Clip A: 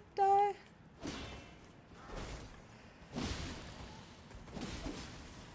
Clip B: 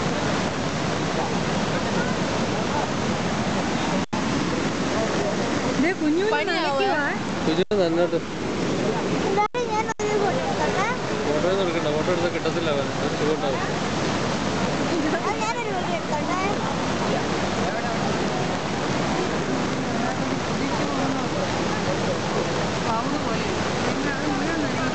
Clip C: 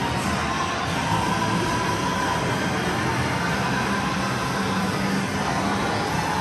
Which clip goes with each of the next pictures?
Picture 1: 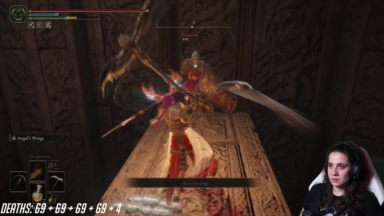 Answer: A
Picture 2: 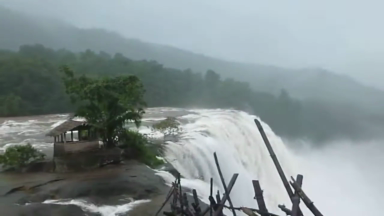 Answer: B